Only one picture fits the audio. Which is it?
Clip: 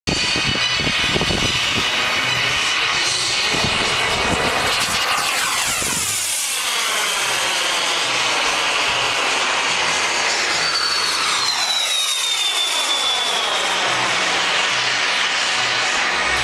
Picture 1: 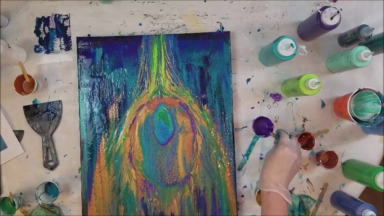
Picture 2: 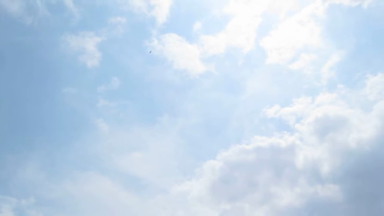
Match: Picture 2